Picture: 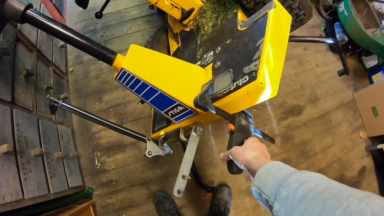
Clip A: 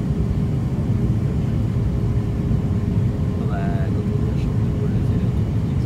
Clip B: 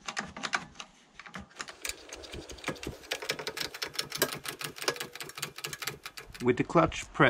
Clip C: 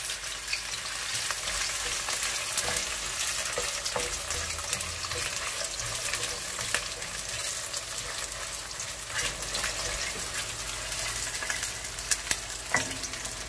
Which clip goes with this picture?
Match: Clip B